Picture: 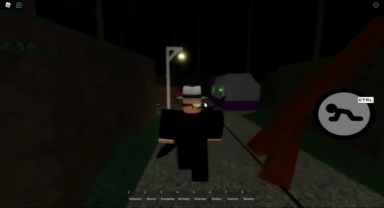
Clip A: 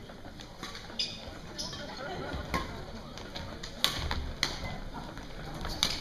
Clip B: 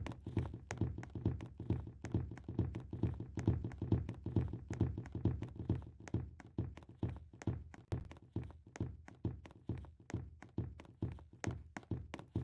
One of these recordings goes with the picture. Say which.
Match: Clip B